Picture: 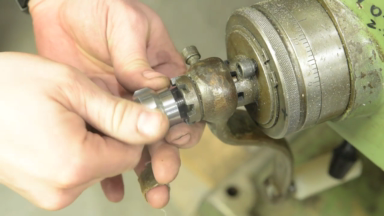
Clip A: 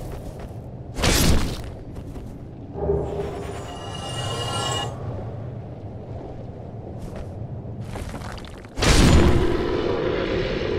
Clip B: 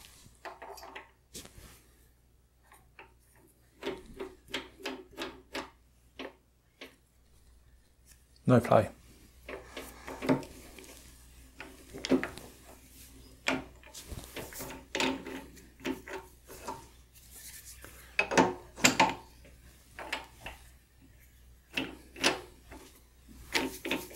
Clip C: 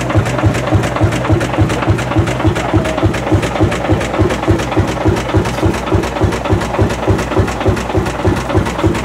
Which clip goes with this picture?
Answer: B